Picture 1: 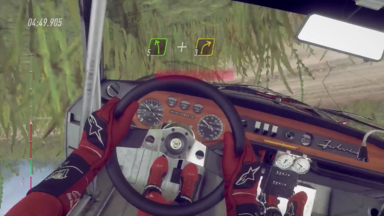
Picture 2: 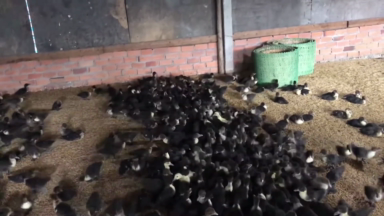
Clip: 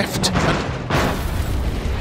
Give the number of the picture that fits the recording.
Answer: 1